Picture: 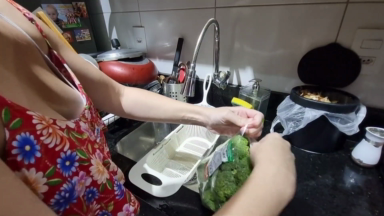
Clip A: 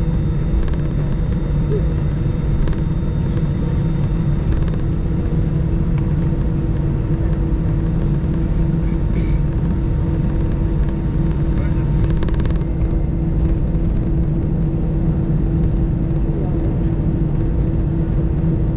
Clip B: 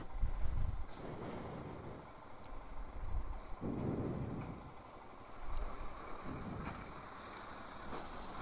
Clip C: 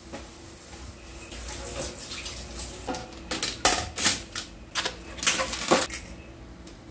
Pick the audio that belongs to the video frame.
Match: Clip C